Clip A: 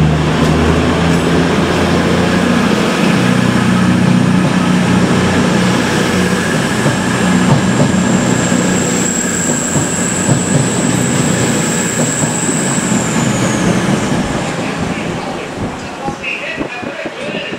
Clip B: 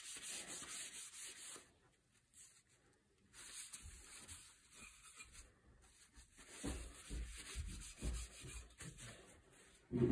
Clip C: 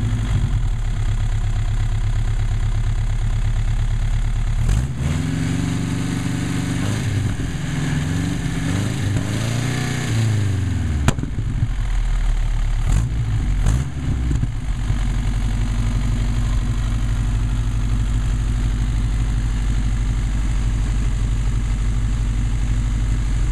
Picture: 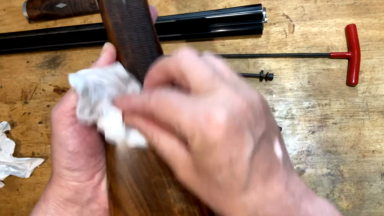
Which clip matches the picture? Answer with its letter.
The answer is B